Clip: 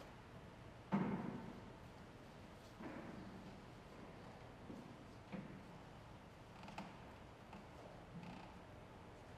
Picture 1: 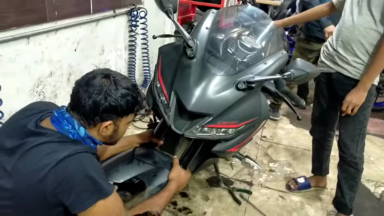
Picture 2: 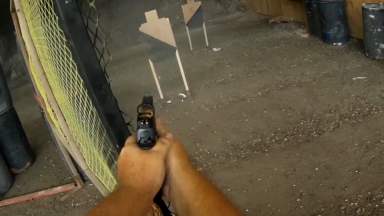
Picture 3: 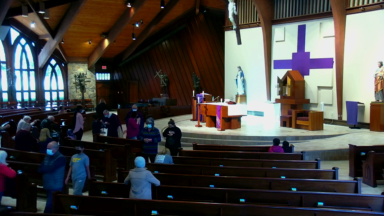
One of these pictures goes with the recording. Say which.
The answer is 3